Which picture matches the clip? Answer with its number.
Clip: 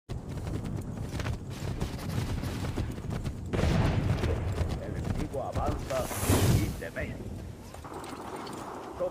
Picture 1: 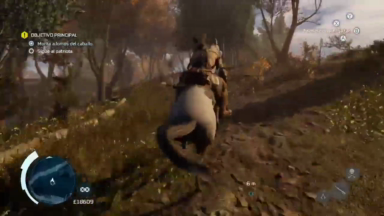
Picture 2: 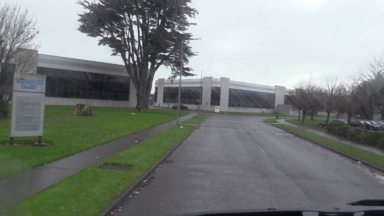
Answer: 1